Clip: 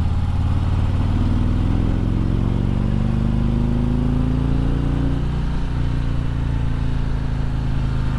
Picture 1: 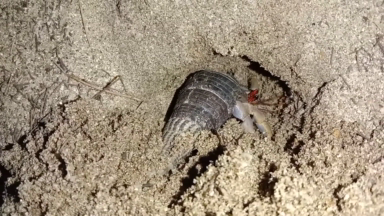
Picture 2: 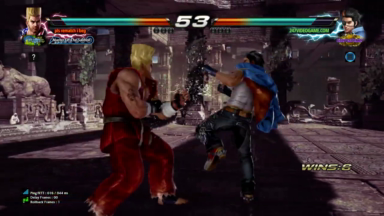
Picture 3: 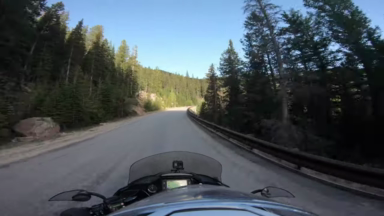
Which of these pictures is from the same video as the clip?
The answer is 3